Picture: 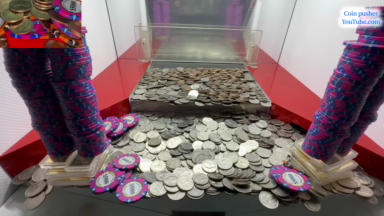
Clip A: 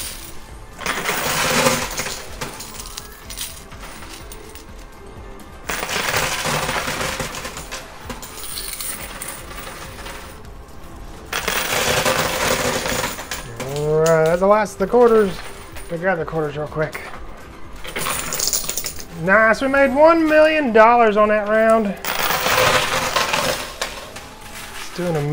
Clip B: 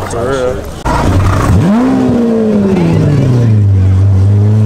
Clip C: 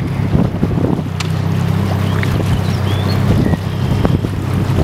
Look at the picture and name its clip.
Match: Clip A